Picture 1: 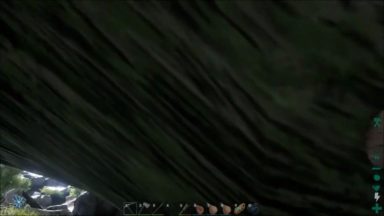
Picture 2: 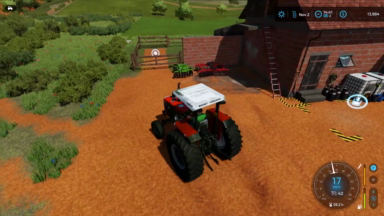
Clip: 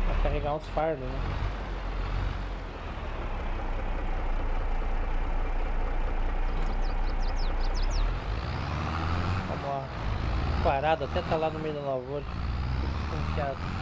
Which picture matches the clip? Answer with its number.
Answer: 2